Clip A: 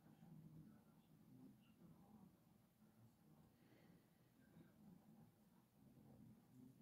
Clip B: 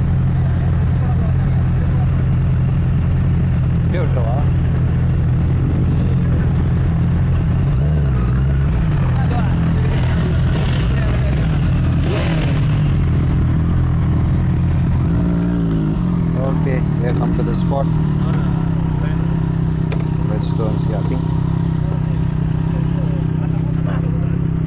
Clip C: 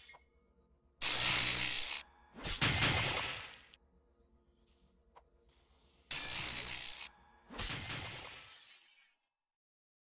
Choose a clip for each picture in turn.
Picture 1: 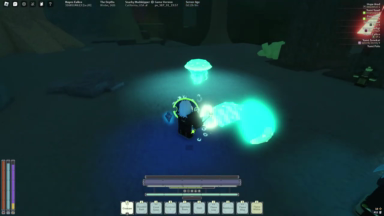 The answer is C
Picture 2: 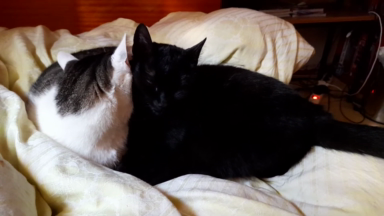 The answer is A